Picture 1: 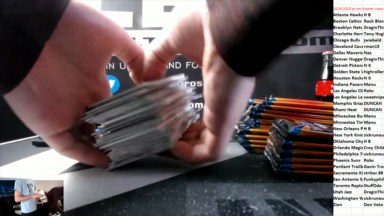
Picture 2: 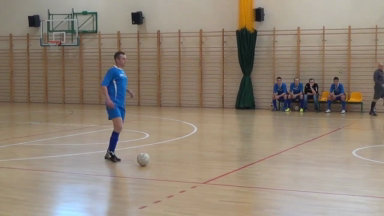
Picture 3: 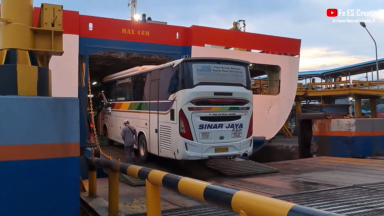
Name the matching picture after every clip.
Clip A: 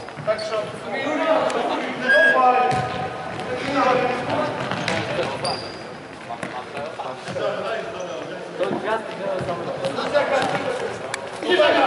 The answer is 2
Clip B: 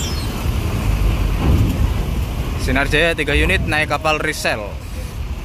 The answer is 3